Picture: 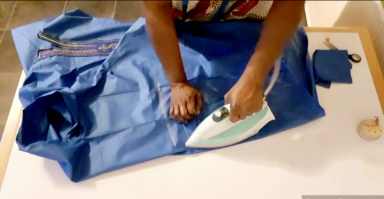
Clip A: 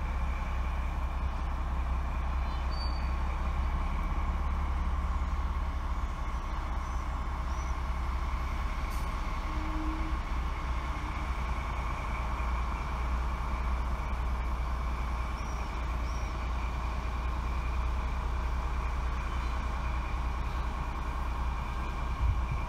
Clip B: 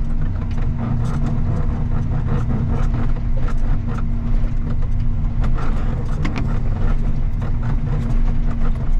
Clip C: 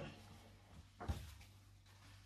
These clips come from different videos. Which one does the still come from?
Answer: C